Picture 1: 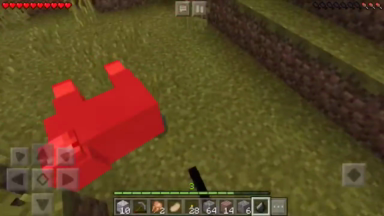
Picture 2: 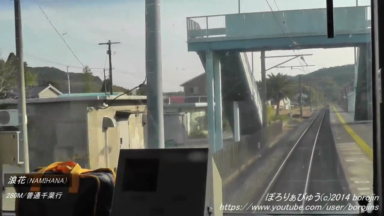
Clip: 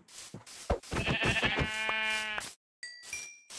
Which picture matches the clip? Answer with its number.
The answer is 1